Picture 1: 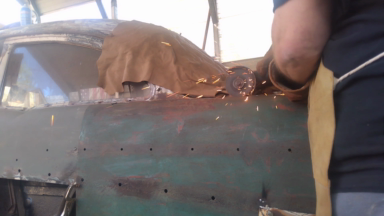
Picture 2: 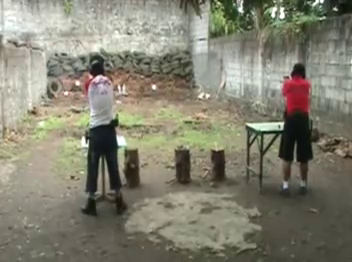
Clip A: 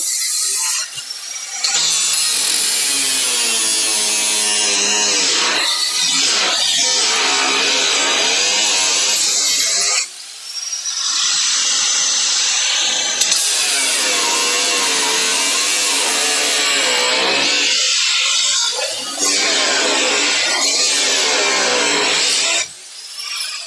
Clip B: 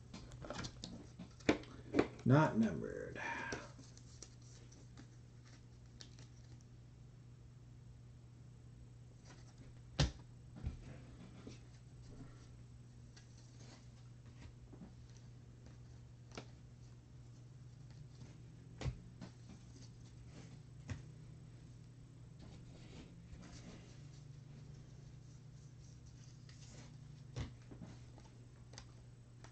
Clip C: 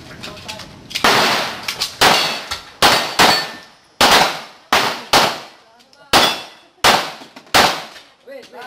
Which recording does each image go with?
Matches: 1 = A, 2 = C